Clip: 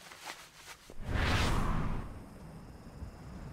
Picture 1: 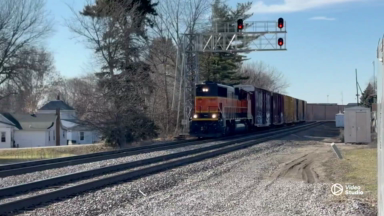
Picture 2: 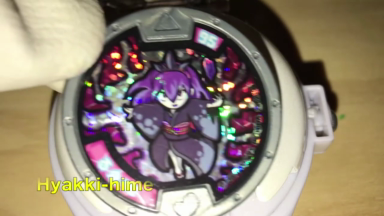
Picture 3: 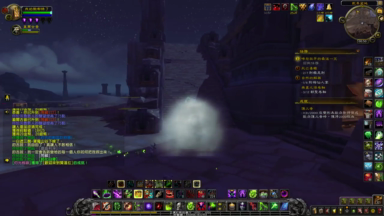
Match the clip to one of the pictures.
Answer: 3